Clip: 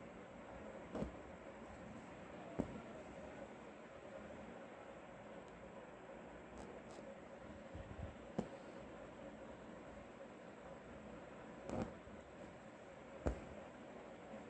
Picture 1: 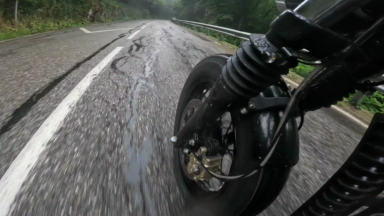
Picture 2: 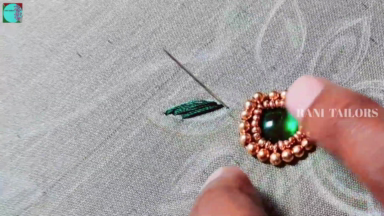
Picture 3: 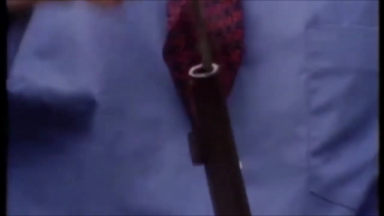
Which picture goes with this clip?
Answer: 2